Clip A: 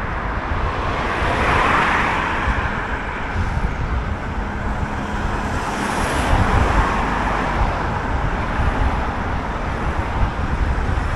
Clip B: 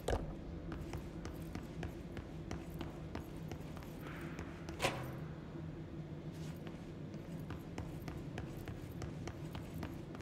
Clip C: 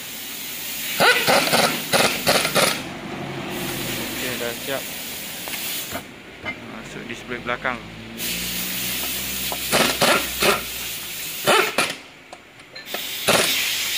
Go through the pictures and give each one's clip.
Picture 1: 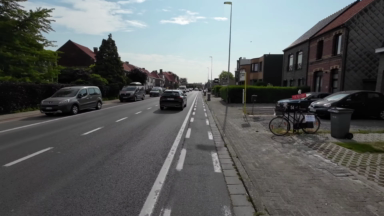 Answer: A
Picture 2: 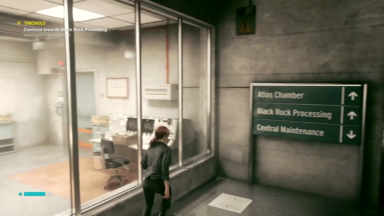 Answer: B